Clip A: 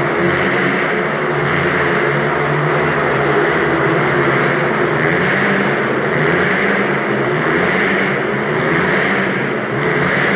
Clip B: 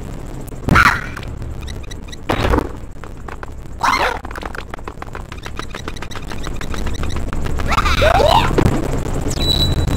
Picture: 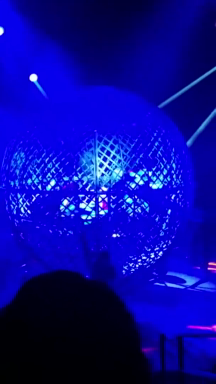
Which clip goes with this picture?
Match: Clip A